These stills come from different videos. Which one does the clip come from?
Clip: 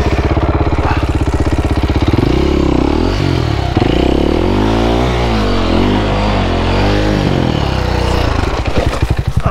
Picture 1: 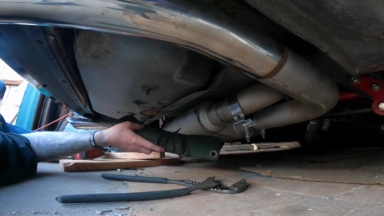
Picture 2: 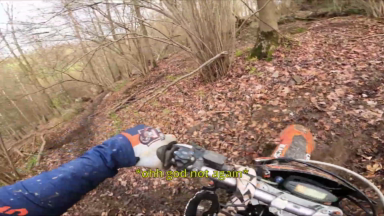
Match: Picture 2